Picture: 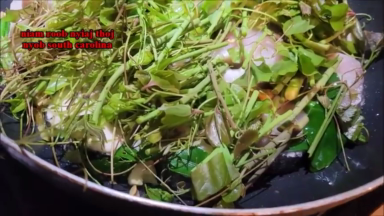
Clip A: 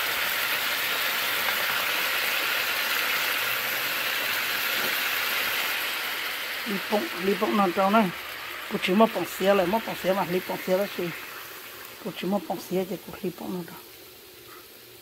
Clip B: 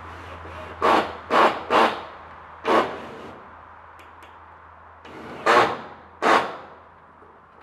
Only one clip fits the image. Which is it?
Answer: A